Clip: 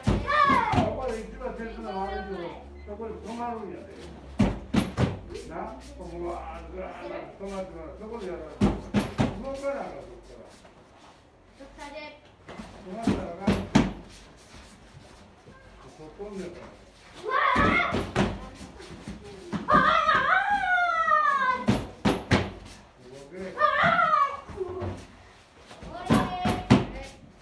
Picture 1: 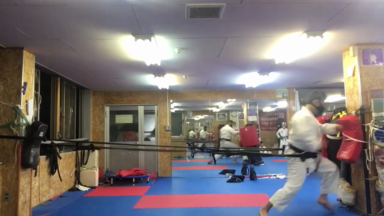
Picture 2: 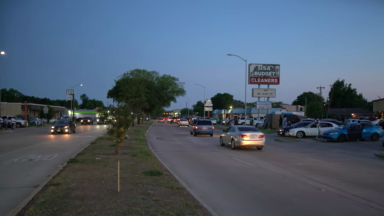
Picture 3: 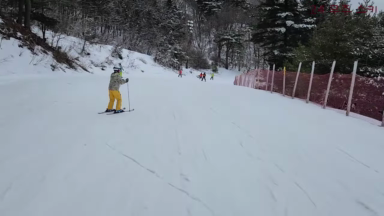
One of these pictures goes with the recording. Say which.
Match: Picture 1